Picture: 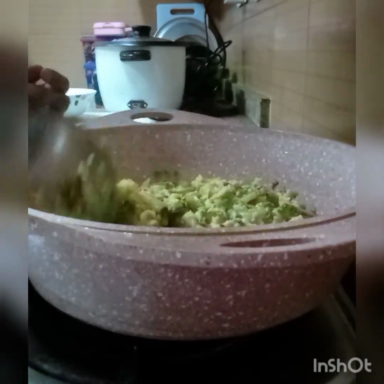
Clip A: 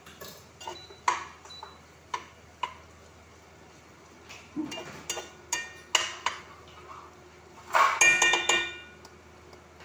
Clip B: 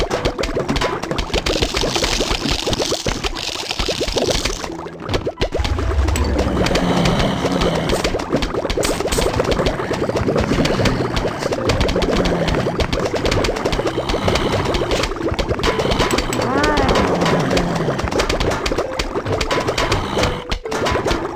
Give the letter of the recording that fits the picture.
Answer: A